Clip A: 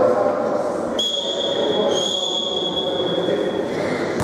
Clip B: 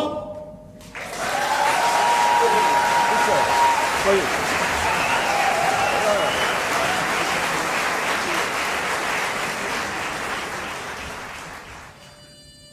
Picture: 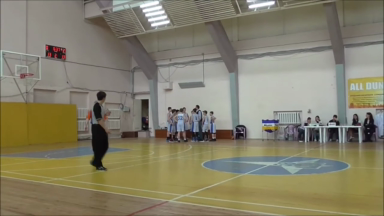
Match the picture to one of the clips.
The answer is A